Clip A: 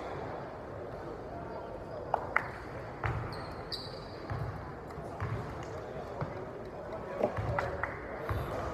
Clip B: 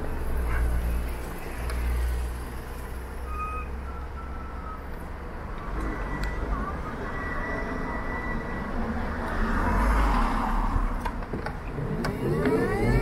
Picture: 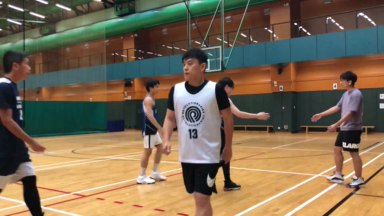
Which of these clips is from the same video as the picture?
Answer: A